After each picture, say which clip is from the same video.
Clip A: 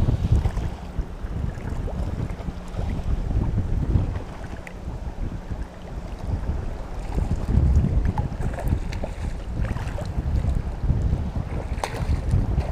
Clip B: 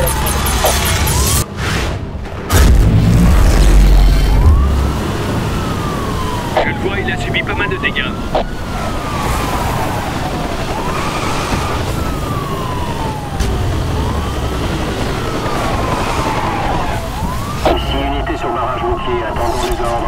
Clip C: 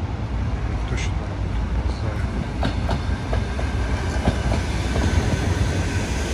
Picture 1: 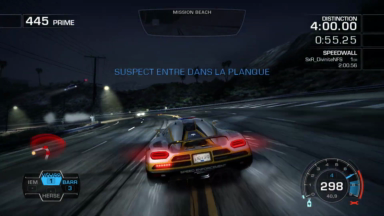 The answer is B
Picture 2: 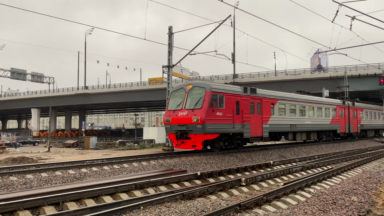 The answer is C